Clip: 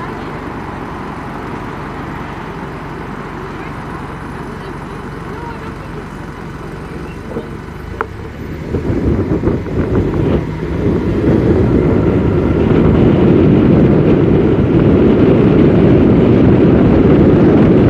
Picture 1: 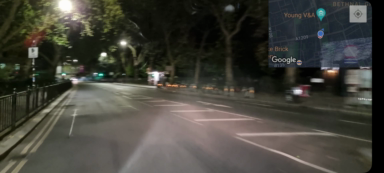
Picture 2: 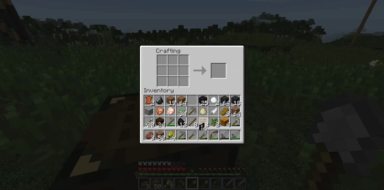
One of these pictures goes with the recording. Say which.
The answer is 1